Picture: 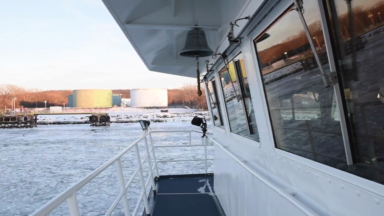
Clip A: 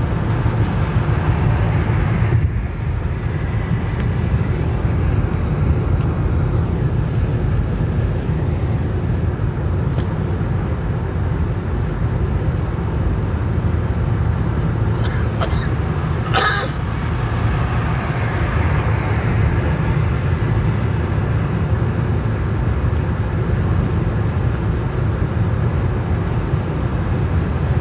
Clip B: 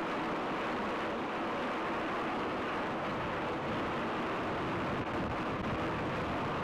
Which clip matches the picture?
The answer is B